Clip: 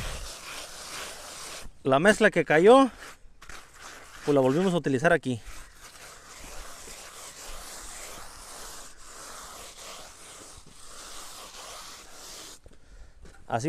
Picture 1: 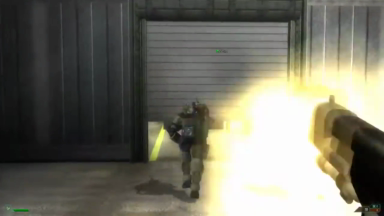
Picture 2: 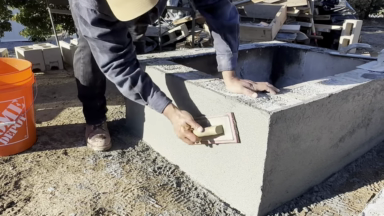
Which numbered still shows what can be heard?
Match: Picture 2